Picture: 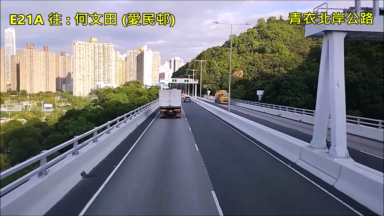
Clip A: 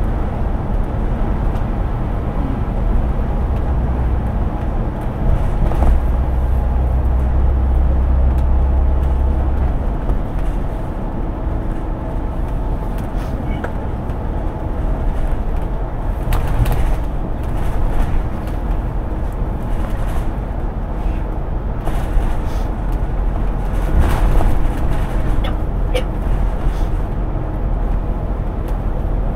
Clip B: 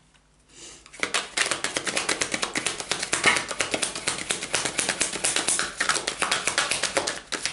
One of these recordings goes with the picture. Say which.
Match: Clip A